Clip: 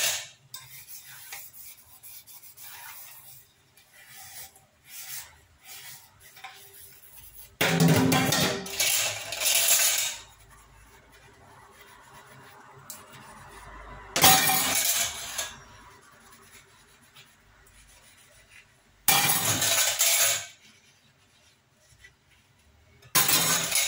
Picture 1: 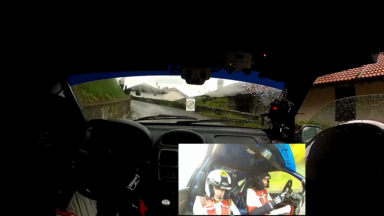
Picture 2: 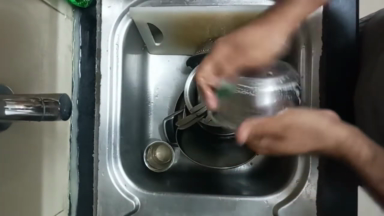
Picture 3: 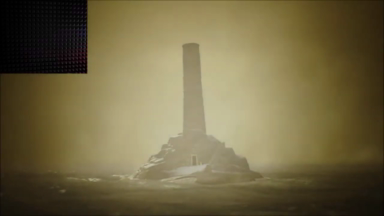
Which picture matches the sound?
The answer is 2